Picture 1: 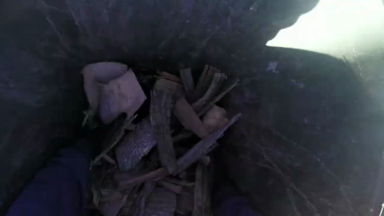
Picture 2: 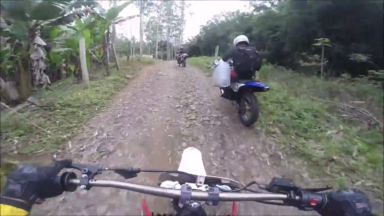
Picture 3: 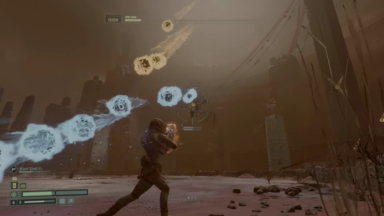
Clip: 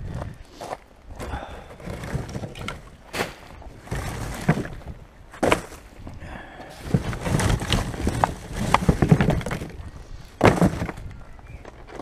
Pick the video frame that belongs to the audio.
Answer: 1